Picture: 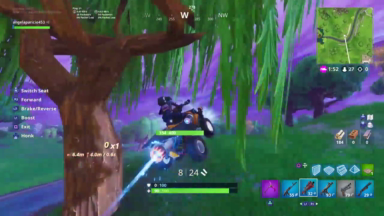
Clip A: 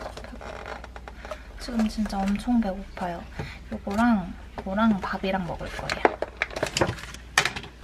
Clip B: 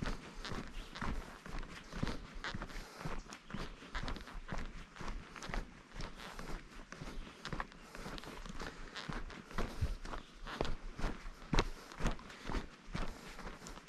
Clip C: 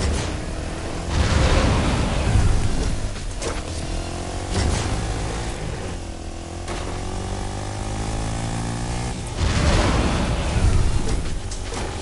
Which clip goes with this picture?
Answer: C